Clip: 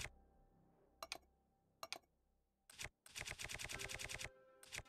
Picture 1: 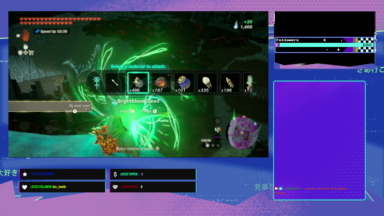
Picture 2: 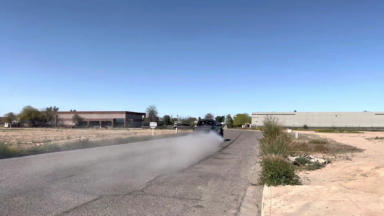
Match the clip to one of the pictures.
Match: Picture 1